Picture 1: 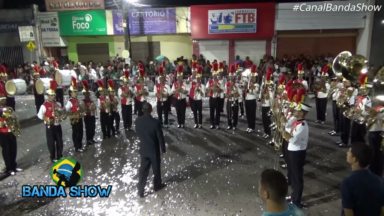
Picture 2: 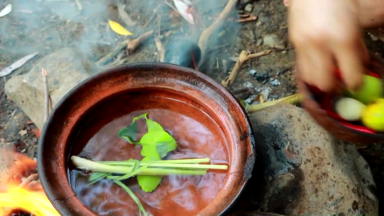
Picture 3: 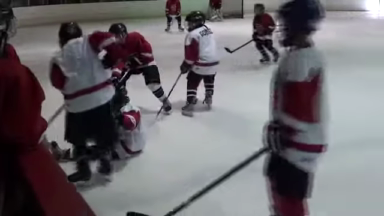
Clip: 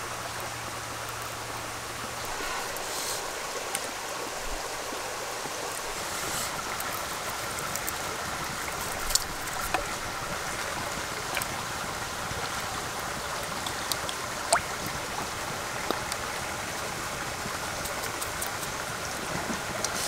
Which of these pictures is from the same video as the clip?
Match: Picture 2